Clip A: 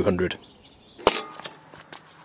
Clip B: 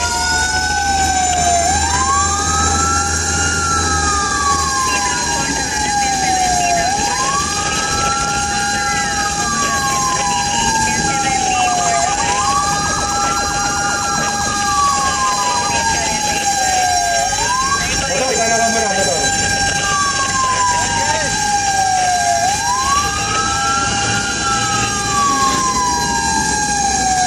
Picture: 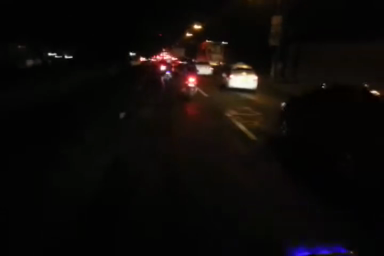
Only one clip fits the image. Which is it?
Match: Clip B